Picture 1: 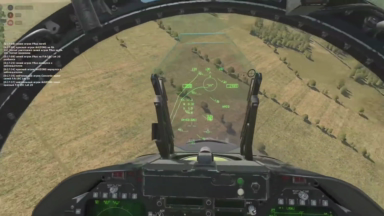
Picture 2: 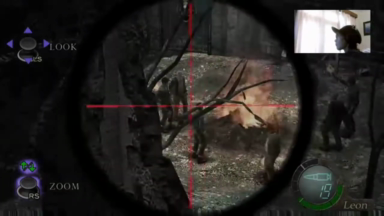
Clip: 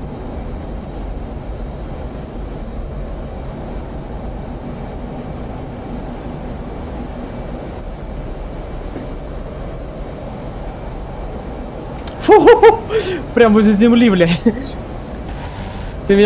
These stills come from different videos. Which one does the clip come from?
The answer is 1